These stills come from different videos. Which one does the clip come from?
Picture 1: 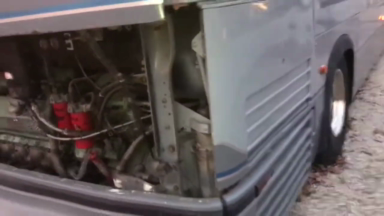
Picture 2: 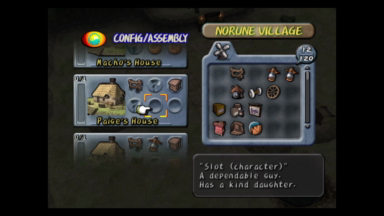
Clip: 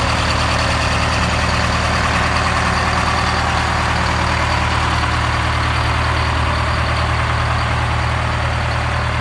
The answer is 1